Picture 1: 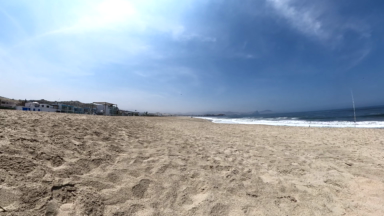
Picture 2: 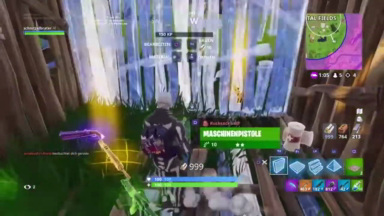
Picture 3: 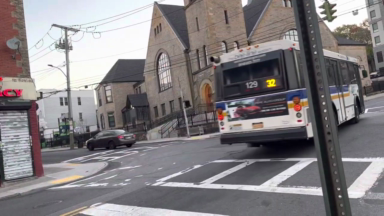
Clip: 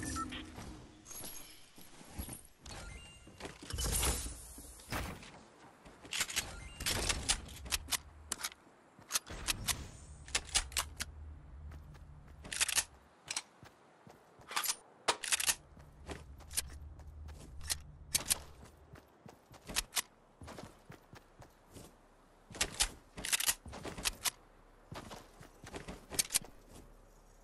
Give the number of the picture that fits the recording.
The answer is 2